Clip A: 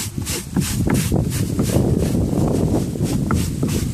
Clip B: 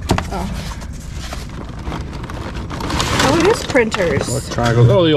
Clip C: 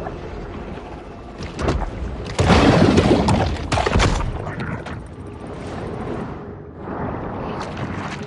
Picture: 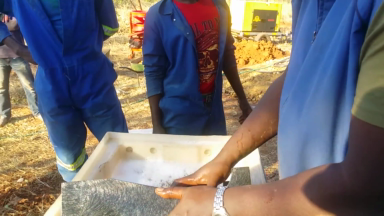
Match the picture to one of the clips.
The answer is A